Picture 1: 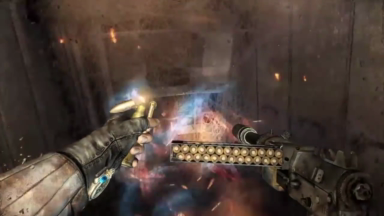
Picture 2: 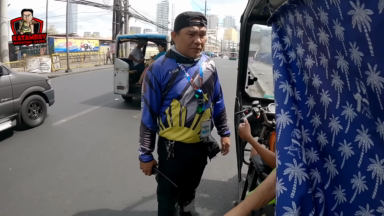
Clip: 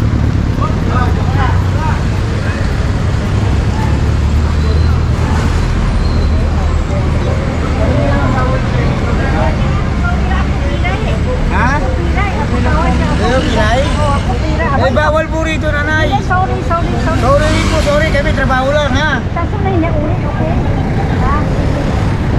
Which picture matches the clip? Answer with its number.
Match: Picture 2